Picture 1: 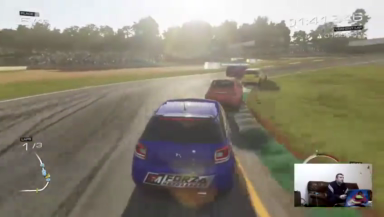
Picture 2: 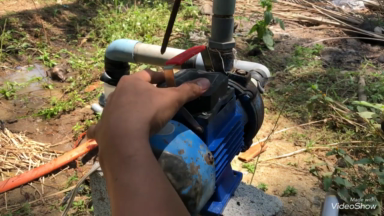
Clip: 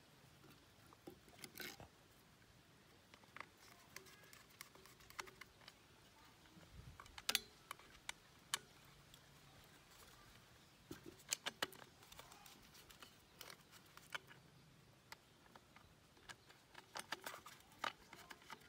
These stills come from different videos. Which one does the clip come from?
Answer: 2